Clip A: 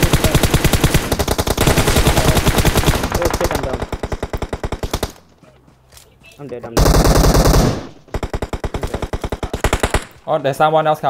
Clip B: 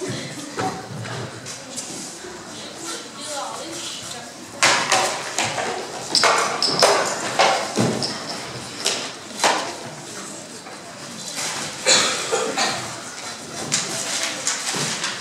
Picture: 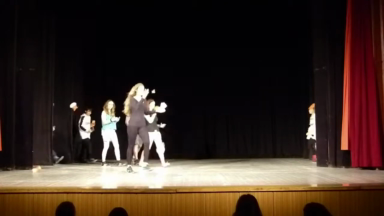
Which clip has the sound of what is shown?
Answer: B